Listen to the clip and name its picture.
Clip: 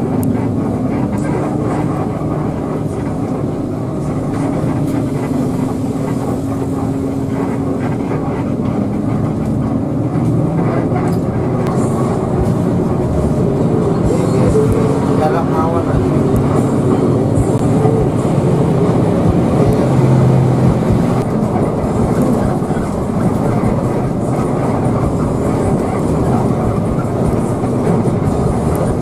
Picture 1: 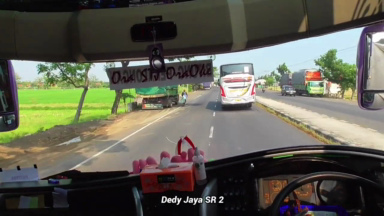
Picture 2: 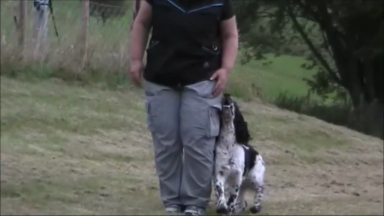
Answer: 1